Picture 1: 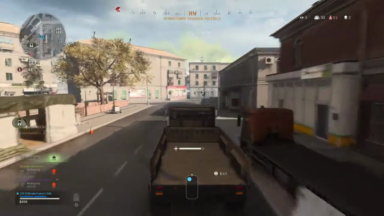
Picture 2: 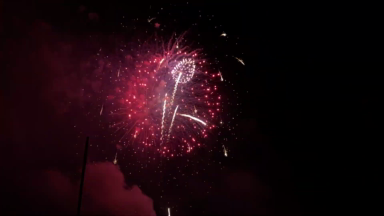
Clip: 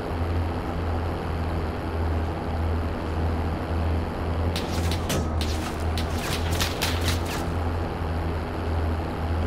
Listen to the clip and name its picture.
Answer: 1